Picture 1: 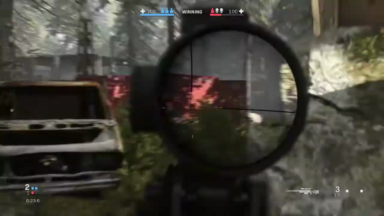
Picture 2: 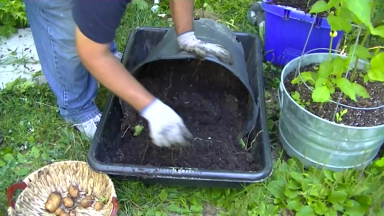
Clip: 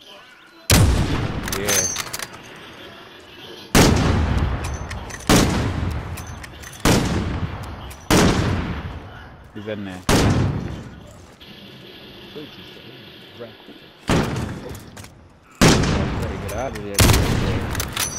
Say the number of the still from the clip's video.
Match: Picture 1